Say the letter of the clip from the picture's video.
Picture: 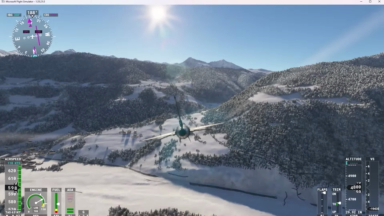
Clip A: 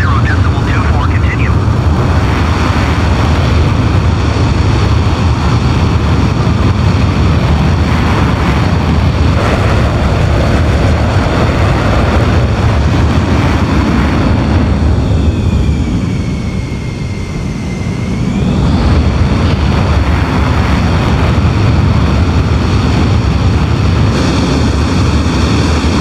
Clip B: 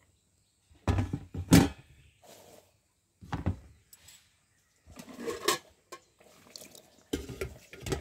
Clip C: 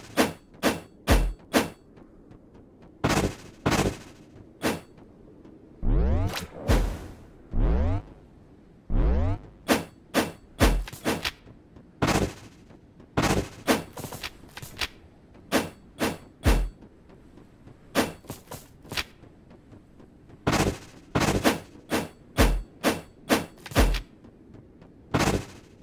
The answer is A